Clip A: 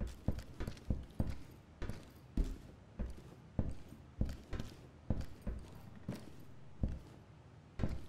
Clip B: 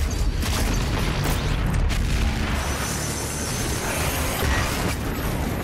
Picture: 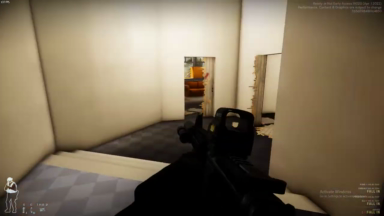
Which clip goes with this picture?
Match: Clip A